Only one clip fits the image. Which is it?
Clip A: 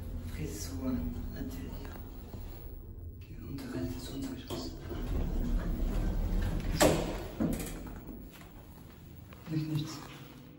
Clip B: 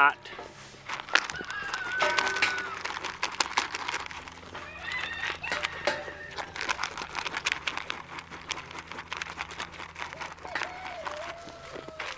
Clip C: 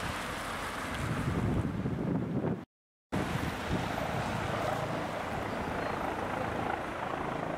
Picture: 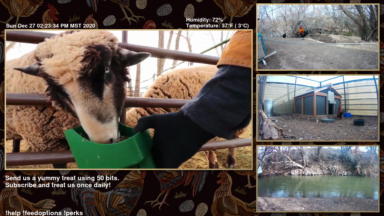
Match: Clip B